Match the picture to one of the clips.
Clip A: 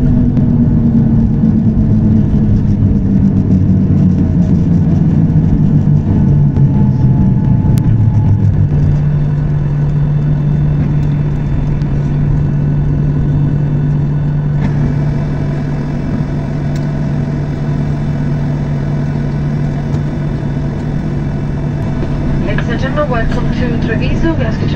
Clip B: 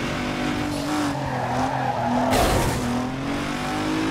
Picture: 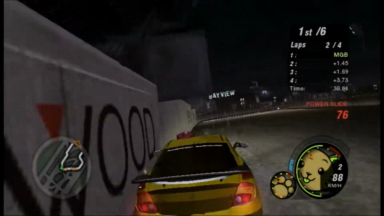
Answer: B